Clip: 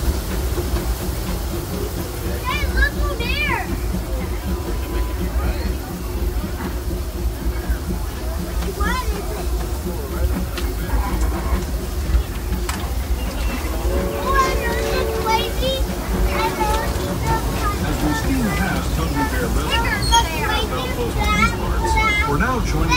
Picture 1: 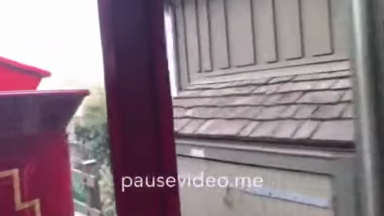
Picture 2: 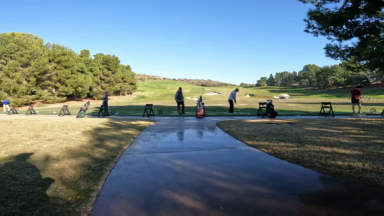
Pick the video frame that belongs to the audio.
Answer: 1